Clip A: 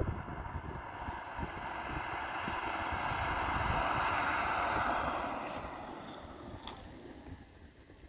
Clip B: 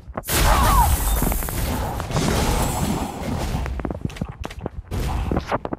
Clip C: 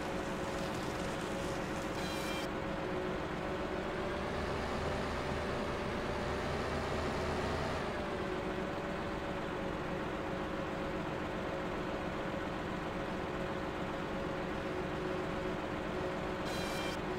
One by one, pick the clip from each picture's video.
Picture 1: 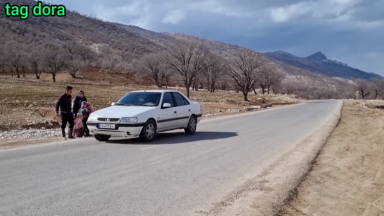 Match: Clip A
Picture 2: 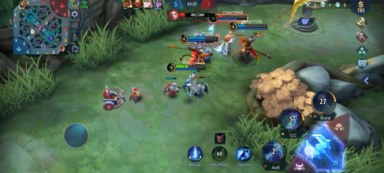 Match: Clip B